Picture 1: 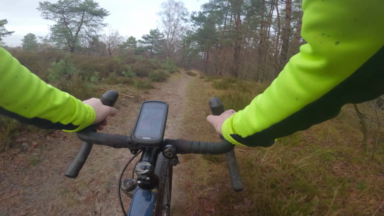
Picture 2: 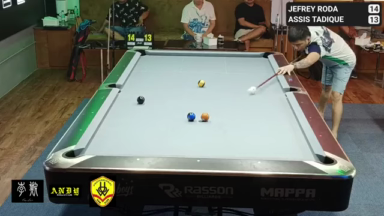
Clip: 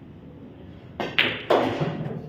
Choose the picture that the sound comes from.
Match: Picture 2